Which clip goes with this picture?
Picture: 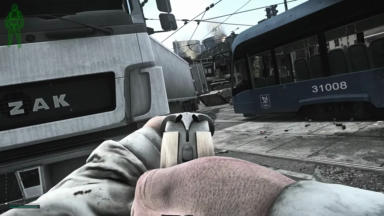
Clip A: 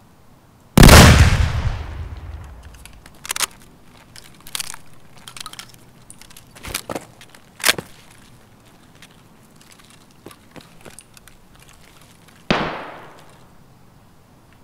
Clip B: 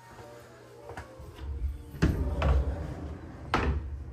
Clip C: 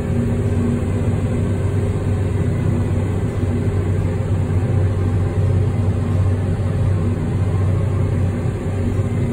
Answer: A